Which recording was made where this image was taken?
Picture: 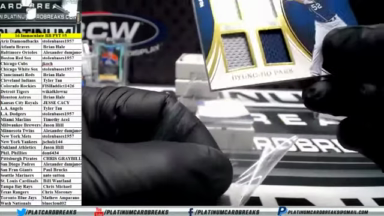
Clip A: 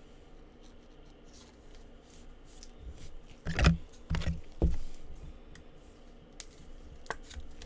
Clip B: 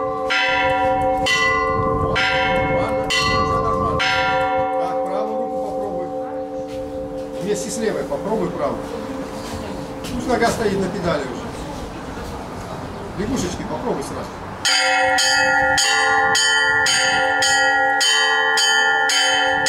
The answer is A